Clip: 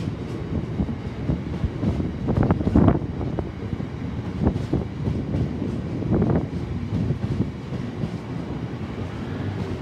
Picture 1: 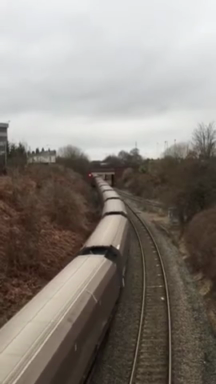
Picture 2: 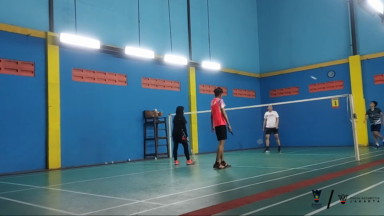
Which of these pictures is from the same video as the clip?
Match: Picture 1